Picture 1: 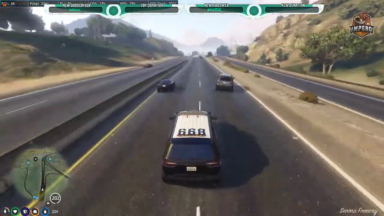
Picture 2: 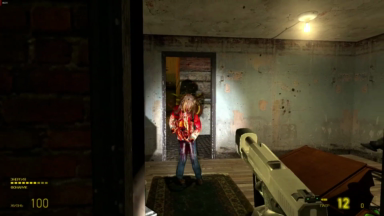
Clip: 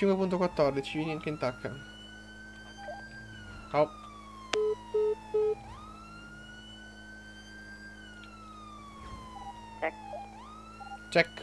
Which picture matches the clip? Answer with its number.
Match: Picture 1